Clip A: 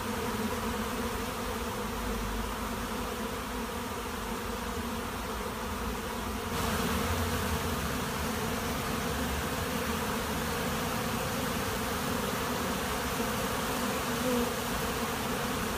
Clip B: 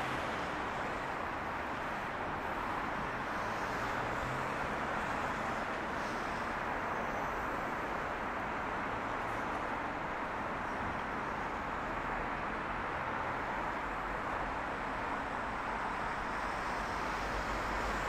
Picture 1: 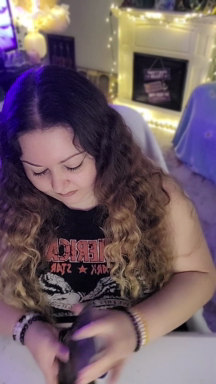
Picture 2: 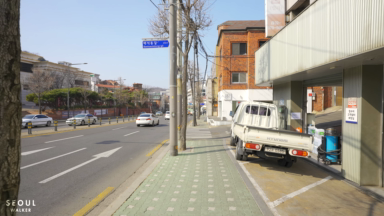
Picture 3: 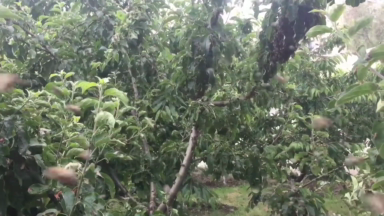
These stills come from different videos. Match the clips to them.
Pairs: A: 3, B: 2